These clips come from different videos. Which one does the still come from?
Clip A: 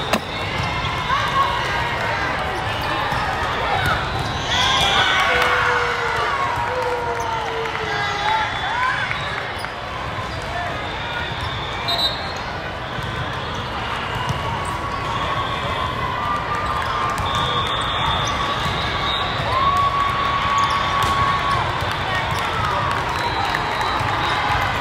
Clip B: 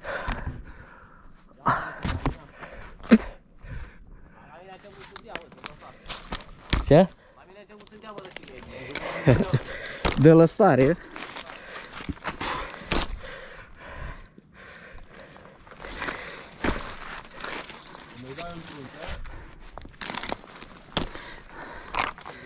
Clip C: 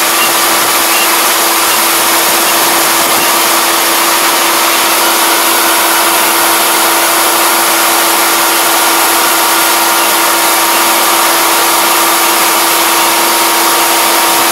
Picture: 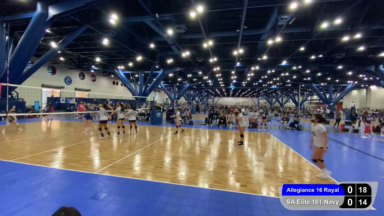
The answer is A